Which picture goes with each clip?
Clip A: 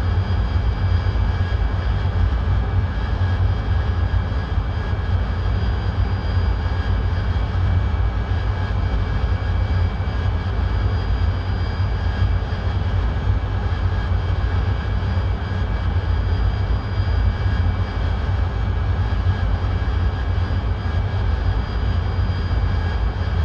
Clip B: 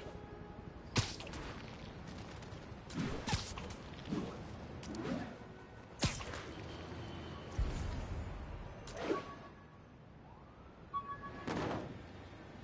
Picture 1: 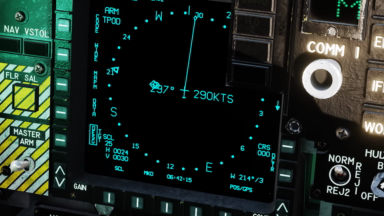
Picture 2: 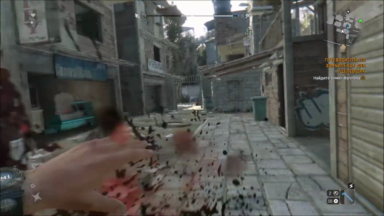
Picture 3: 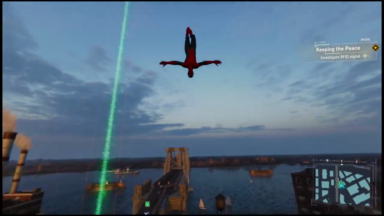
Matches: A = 1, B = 3